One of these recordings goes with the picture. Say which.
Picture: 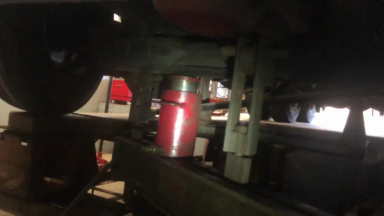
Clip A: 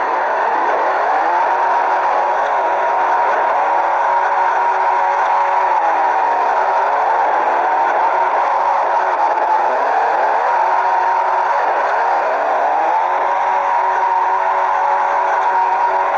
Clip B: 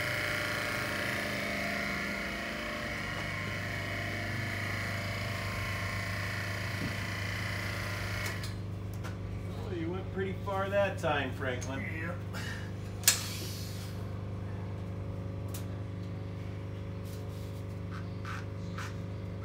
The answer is B